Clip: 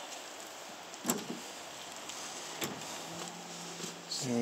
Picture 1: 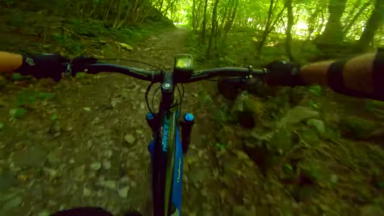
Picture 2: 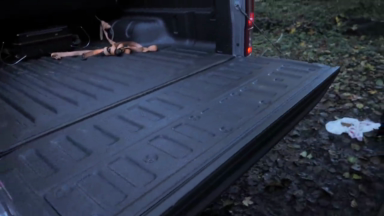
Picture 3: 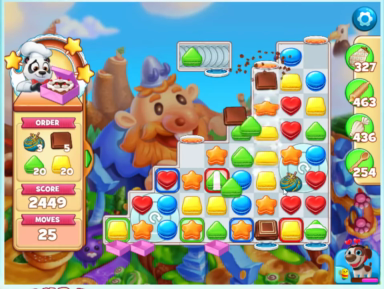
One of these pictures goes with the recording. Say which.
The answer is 2